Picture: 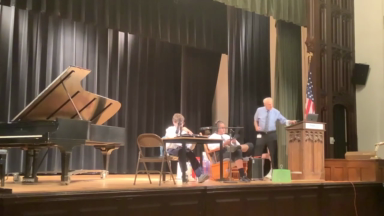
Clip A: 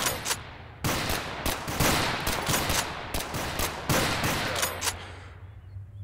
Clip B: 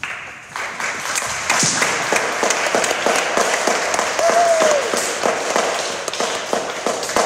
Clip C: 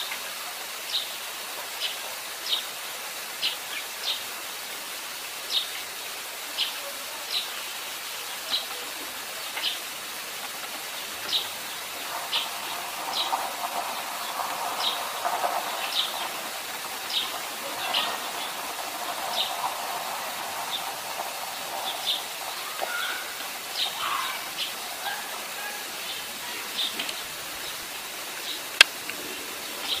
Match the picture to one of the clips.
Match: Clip B